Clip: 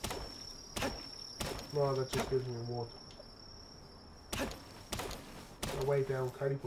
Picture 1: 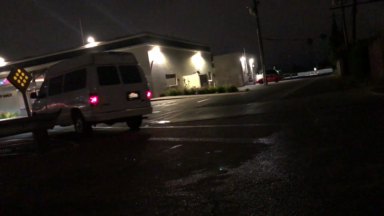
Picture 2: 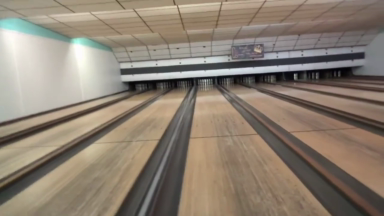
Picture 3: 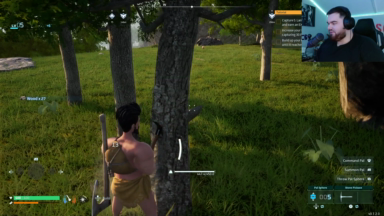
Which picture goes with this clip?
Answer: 3